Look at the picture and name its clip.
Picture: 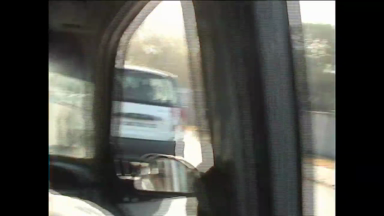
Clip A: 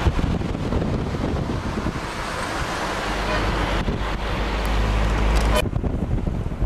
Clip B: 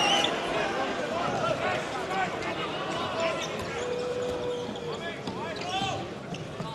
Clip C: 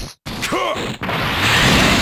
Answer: A